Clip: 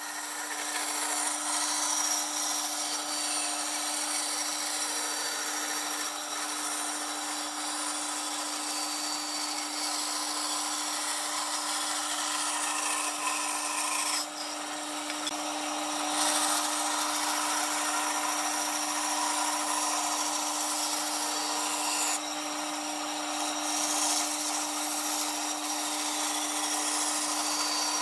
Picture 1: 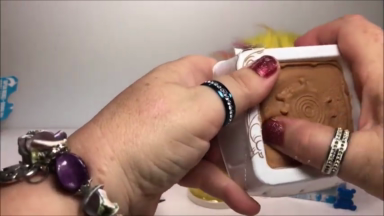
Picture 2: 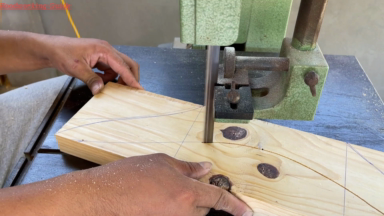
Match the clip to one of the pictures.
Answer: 2